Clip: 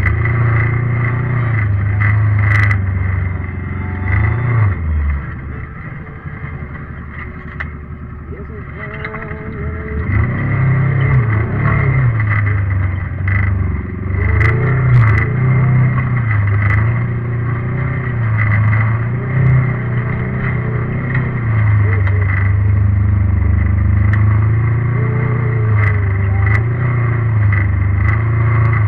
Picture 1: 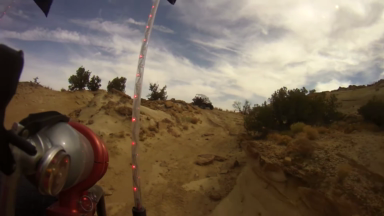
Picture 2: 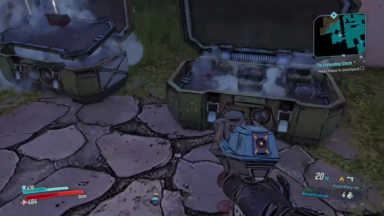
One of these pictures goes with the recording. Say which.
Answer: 1